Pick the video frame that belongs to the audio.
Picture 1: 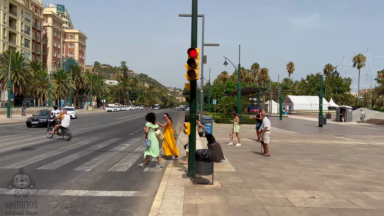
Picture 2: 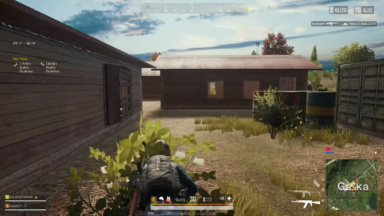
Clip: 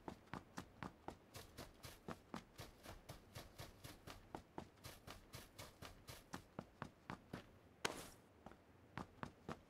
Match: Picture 2